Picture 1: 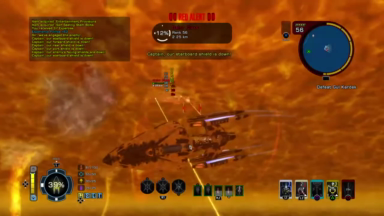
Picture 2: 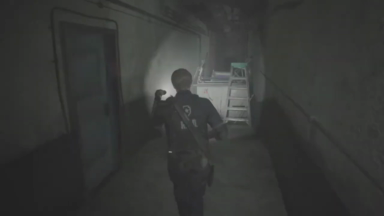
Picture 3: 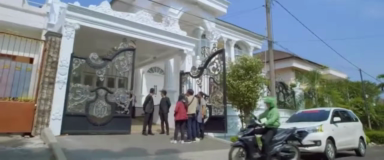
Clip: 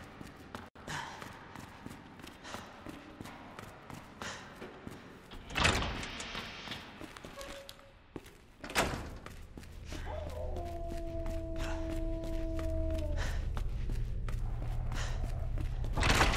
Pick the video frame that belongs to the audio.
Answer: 2